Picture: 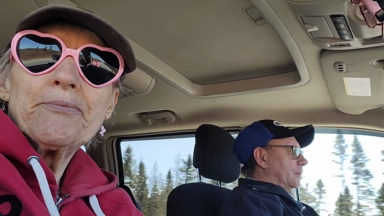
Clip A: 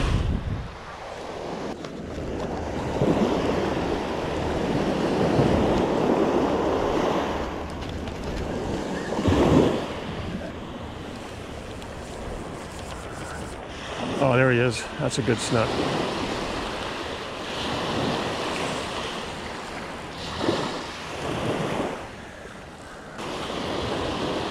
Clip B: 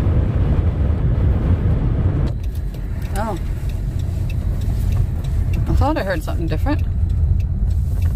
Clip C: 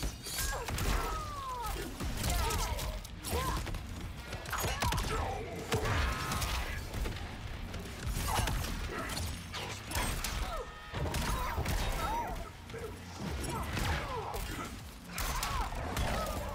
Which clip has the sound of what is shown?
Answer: B